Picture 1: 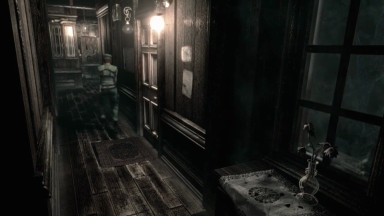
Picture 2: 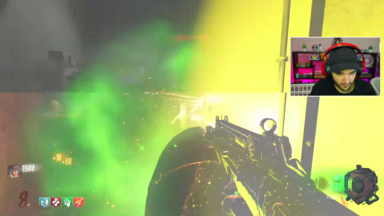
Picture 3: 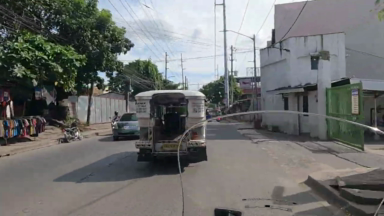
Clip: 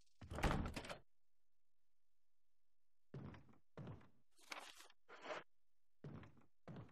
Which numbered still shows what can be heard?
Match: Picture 1